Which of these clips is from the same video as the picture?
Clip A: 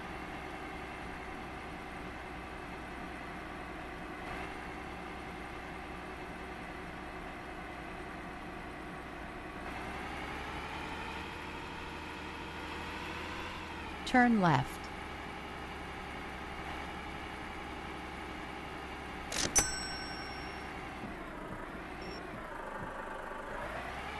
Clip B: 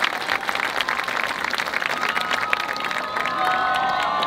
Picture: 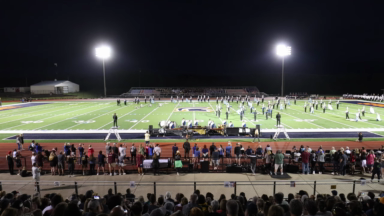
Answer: B